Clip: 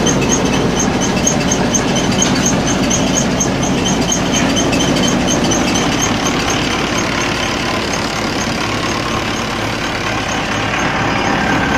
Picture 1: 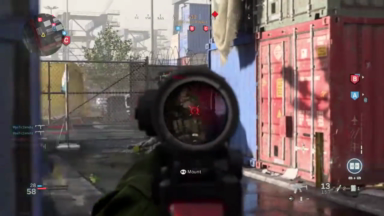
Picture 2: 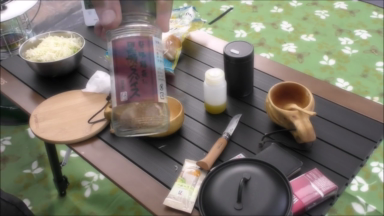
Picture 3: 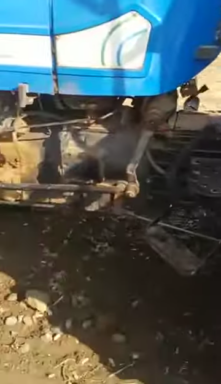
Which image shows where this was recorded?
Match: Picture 3